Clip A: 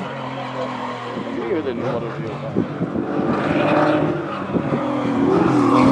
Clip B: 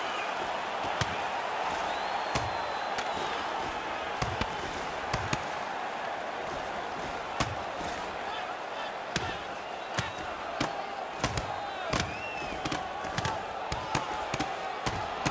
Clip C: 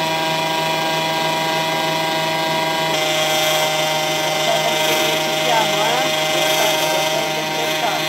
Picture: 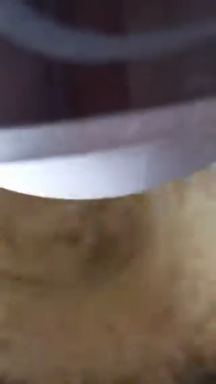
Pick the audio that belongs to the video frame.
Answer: C